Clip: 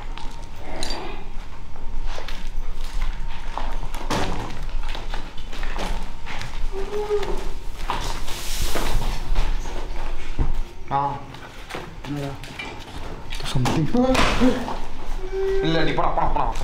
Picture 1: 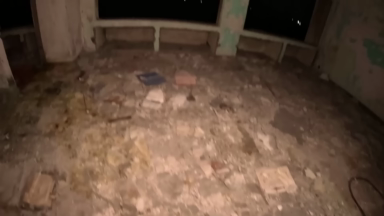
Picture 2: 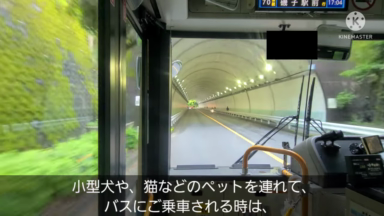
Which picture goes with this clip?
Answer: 1